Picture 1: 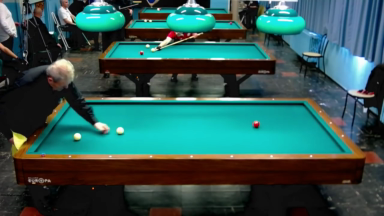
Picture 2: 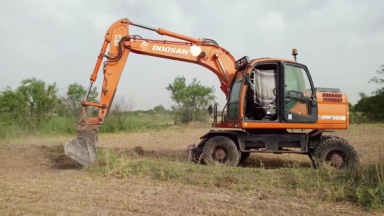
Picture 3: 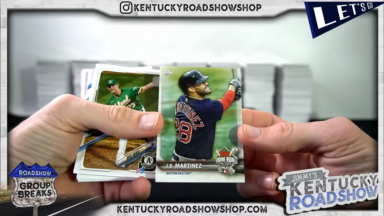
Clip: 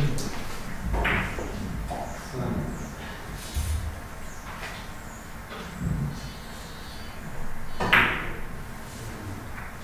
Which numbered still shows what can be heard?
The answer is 1